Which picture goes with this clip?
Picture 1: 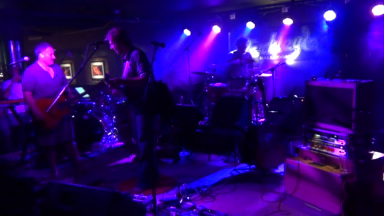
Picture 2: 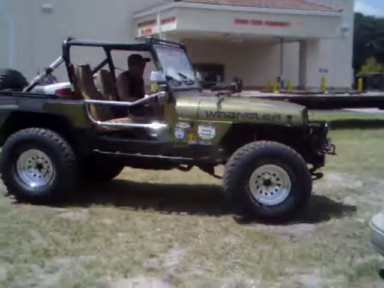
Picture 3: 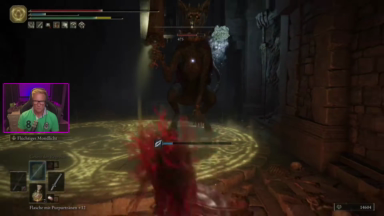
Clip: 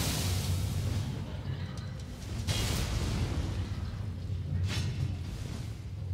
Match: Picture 3